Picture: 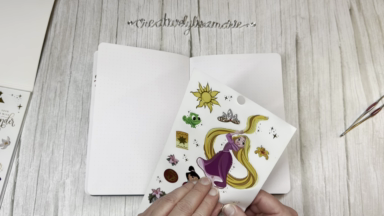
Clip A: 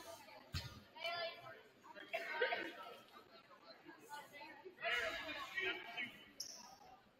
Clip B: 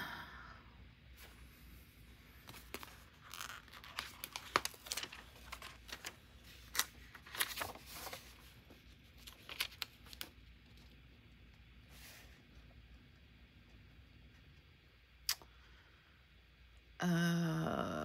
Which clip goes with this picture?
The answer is B